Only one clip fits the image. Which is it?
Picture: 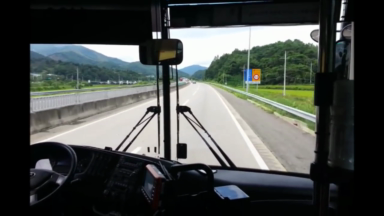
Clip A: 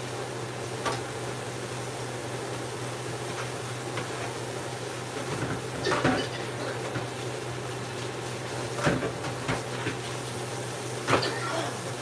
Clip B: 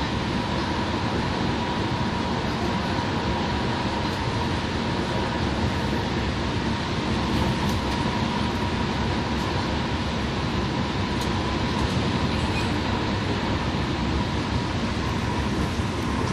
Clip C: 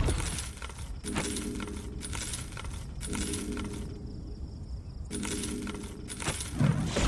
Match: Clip B